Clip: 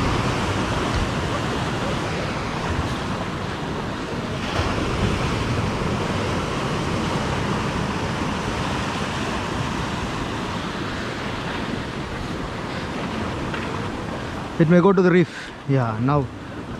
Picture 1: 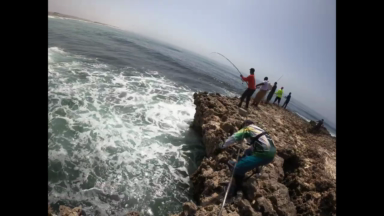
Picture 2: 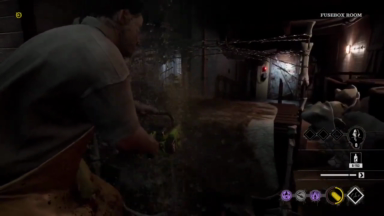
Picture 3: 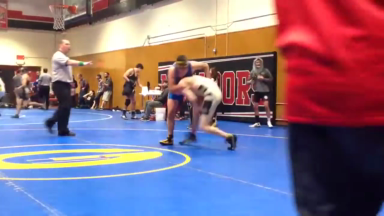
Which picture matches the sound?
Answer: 1